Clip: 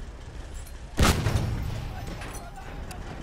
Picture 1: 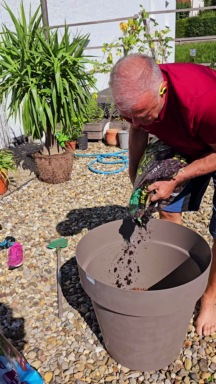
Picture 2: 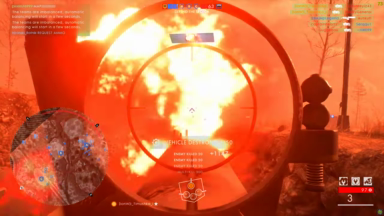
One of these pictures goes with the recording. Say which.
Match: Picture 2